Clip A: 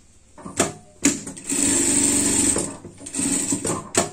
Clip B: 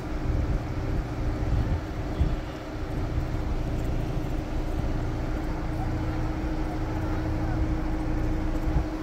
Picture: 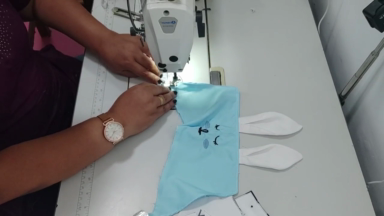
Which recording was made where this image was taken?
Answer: A